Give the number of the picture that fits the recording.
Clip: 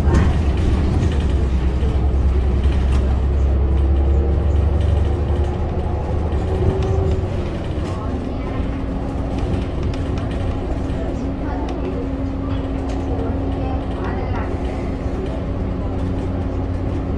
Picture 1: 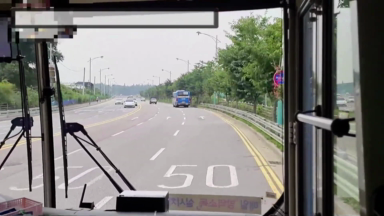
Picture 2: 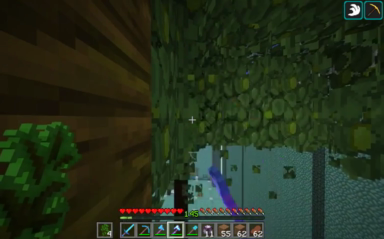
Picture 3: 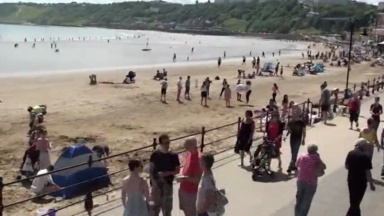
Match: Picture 1